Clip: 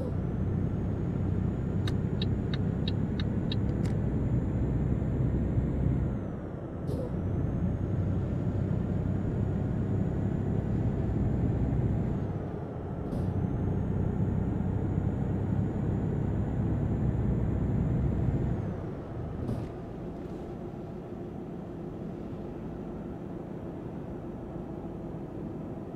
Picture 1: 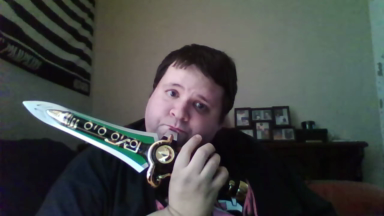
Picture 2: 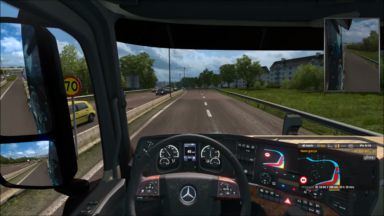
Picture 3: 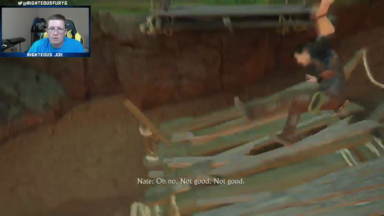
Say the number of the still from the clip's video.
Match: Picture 2